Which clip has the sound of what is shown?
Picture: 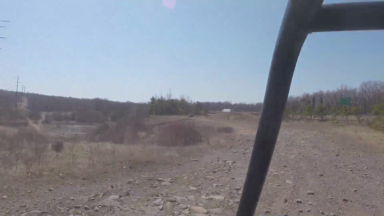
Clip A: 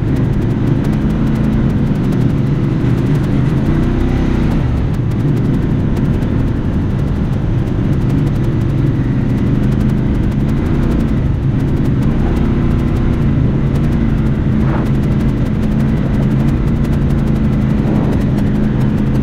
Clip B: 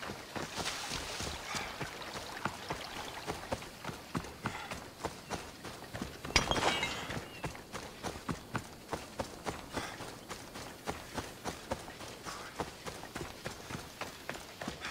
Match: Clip A